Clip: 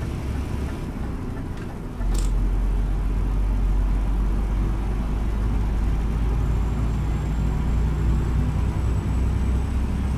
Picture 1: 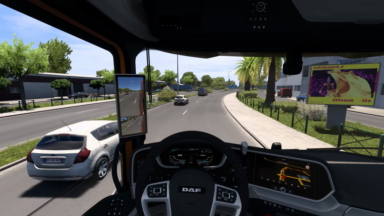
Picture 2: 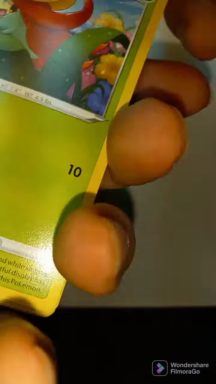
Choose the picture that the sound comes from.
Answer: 1